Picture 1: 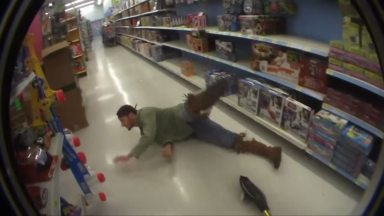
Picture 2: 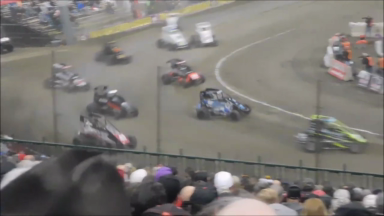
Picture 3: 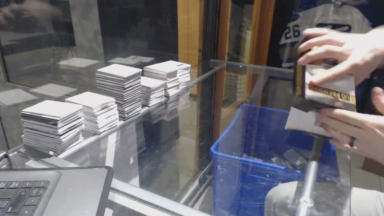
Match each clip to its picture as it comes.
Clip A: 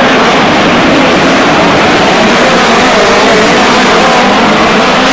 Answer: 2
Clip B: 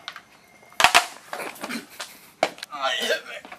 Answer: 1